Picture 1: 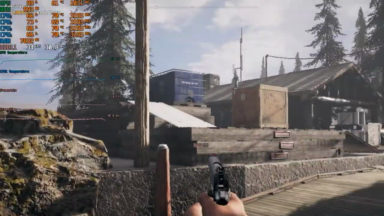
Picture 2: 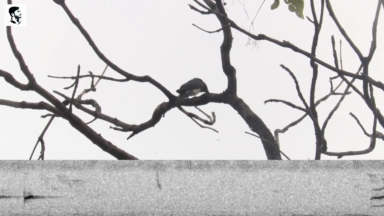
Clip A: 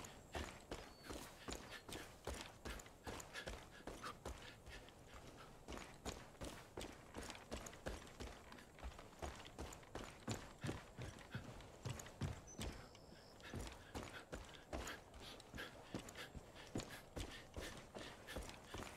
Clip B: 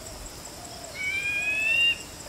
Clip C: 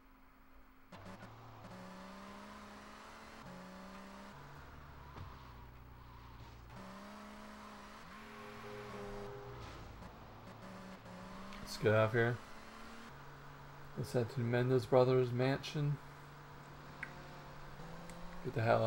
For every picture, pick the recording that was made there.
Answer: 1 A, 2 B